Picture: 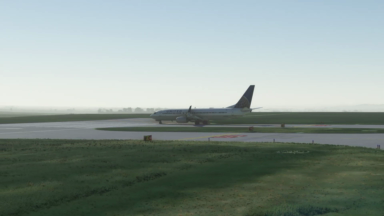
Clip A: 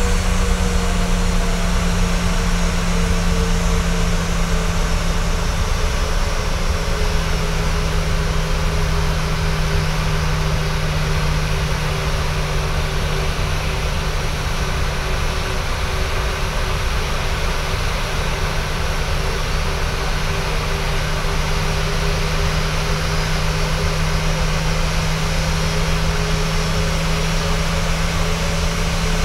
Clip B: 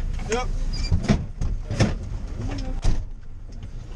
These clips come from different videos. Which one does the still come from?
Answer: A